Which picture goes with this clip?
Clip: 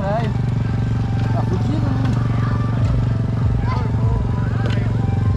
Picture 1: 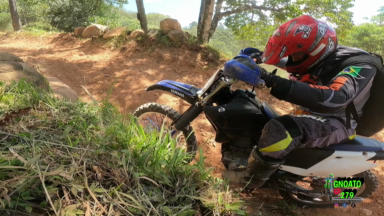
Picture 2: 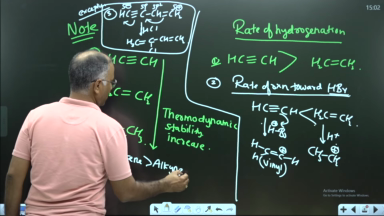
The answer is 1